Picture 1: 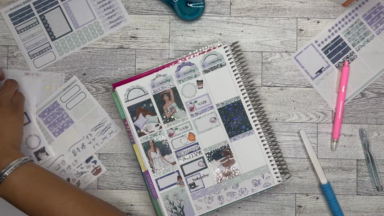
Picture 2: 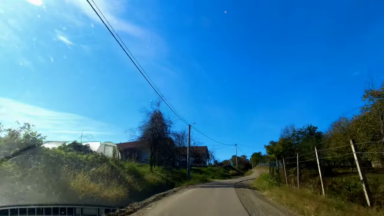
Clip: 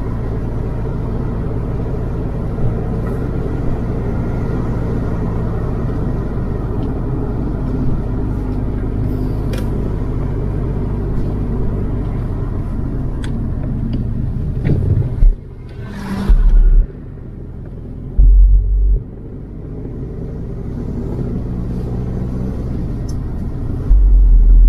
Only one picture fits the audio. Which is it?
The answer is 2